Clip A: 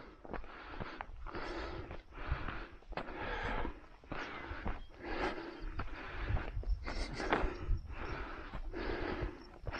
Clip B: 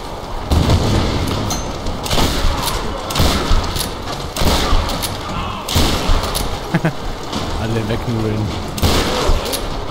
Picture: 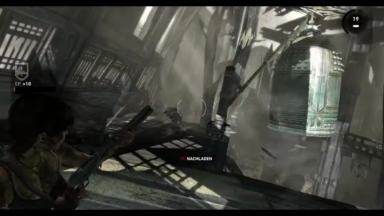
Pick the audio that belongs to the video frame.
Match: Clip B